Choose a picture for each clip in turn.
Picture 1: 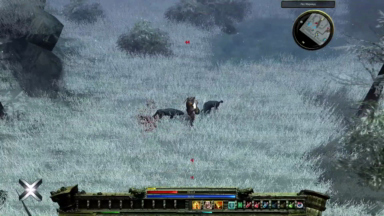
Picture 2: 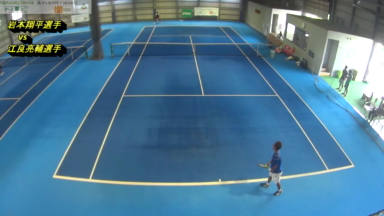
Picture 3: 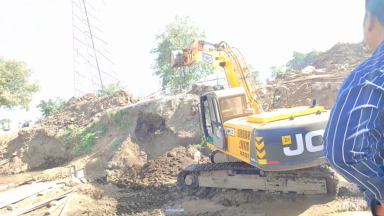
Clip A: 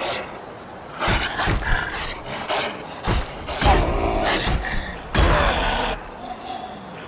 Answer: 1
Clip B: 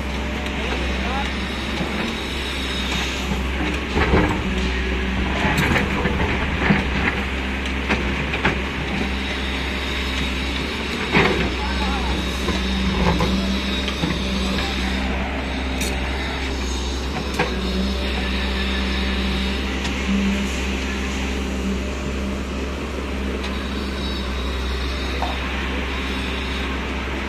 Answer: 3